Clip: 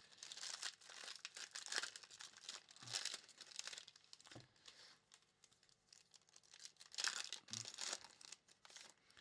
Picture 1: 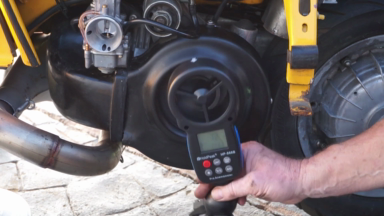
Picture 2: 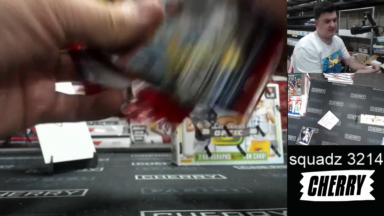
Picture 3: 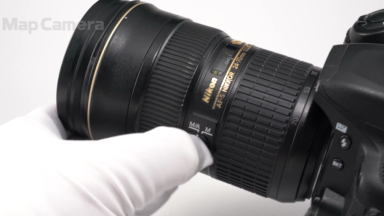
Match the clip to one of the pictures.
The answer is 2